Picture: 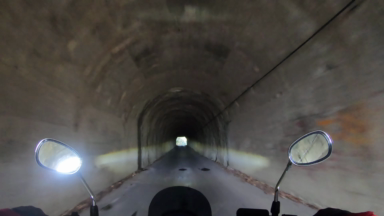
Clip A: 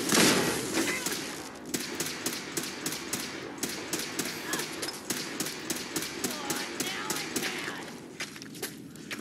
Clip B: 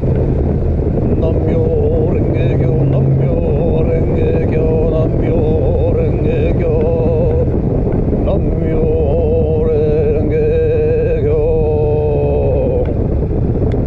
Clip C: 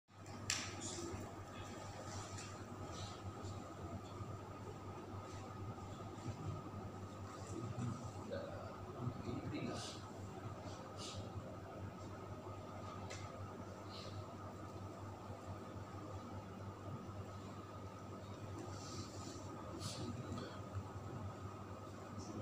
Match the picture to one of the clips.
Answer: B